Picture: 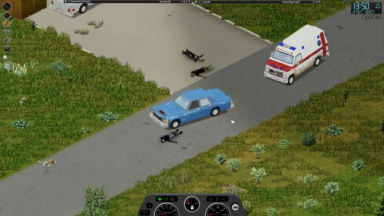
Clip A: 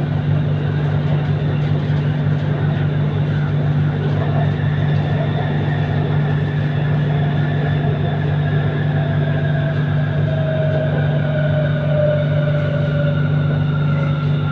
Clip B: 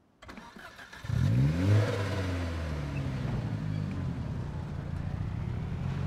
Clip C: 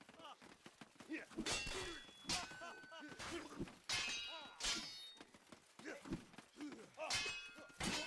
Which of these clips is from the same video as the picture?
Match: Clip B